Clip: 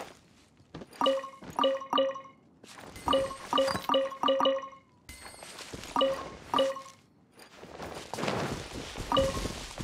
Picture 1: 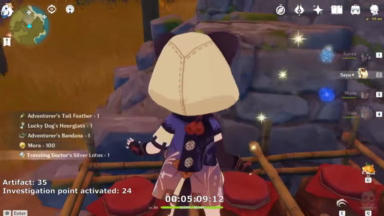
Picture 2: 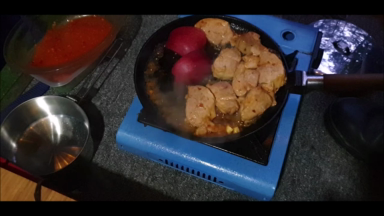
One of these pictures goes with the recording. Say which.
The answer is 1